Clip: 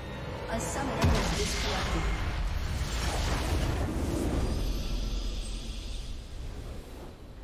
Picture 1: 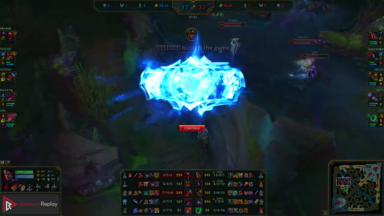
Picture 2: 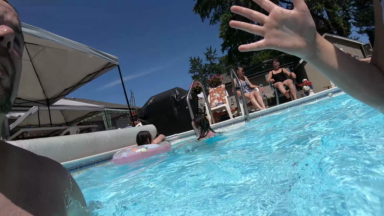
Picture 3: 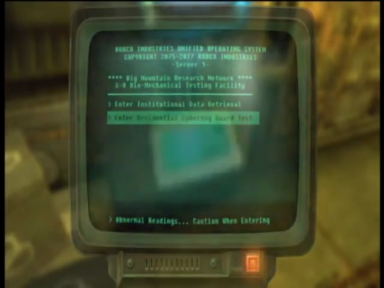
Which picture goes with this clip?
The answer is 1